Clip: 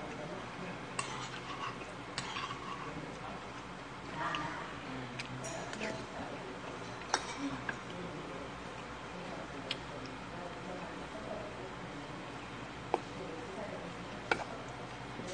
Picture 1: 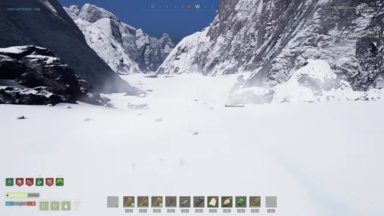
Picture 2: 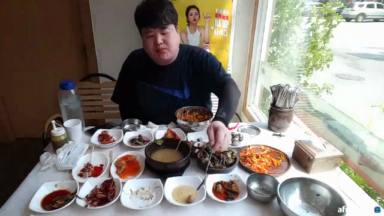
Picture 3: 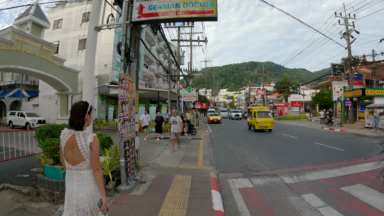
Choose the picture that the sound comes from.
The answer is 2